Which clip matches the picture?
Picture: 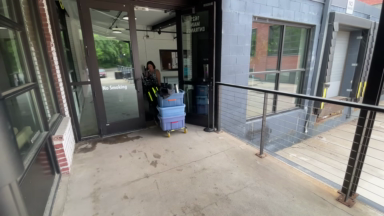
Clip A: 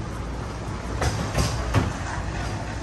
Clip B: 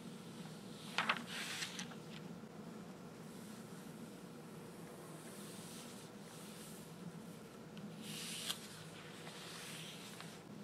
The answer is A